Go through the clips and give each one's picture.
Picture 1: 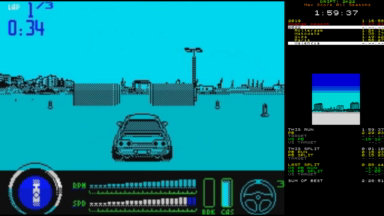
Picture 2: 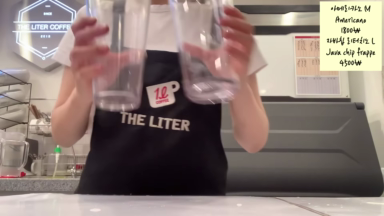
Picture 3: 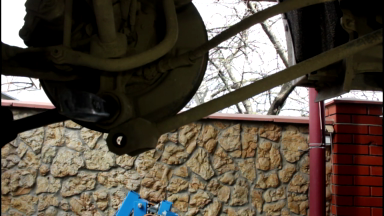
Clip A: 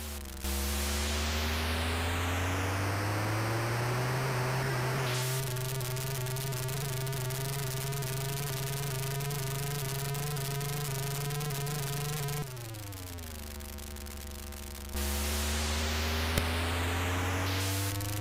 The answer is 1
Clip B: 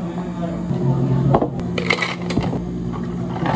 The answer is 2